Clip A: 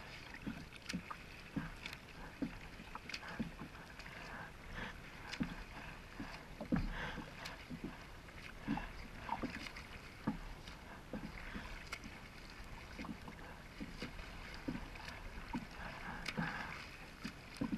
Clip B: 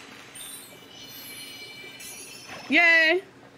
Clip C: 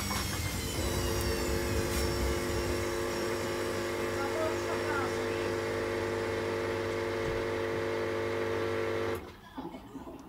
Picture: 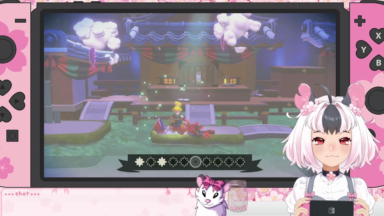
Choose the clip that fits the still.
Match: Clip B